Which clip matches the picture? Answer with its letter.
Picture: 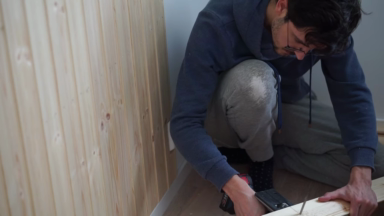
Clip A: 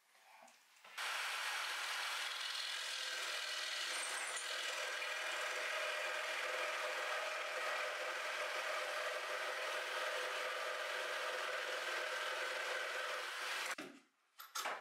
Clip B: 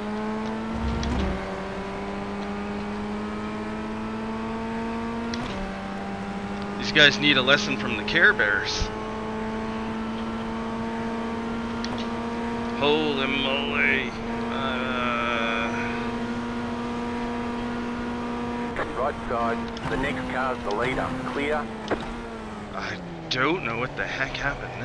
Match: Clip A